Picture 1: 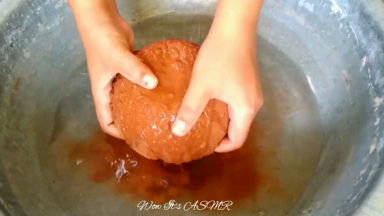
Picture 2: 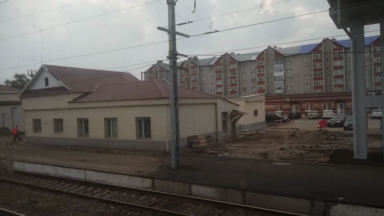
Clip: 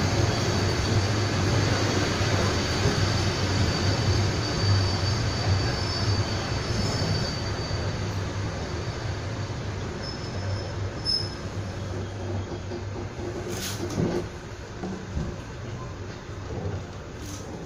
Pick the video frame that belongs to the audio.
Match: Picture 2